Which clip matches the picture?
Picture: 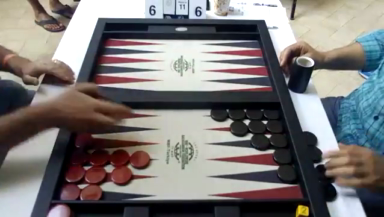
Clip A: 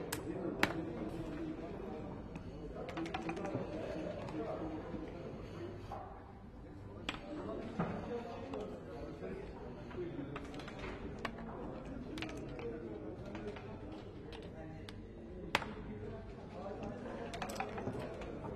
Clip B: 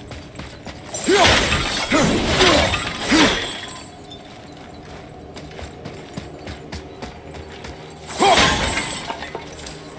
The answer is A